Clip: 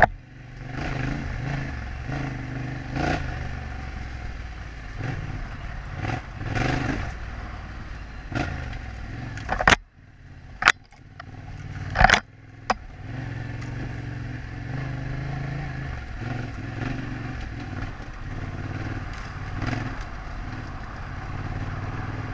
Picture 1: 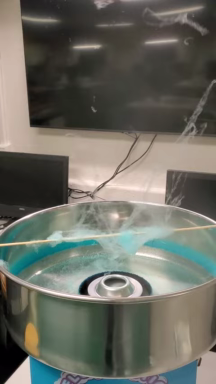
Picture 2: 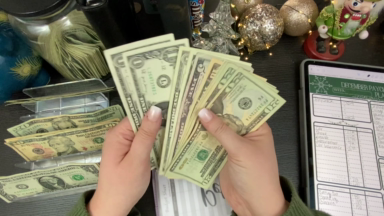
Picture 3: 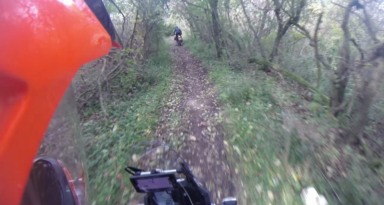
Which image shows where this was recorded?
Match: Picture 3